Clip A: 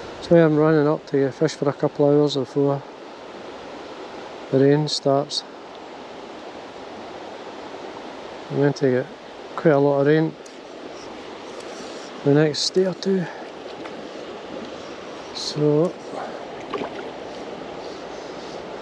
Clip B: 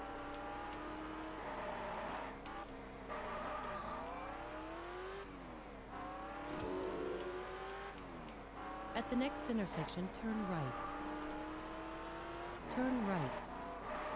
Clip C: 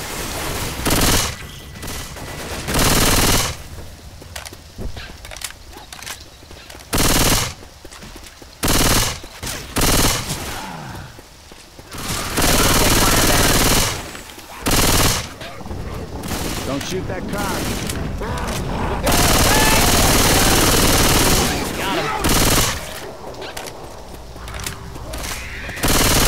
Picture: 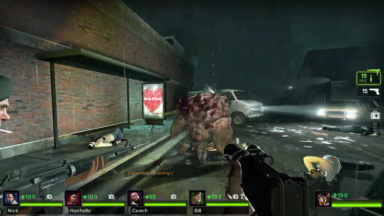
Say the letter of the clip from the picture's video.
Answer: C